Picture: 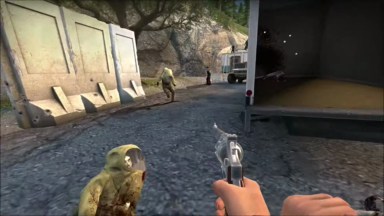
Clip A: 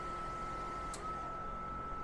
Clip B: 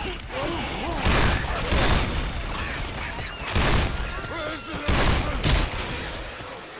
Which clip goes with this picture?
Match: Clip B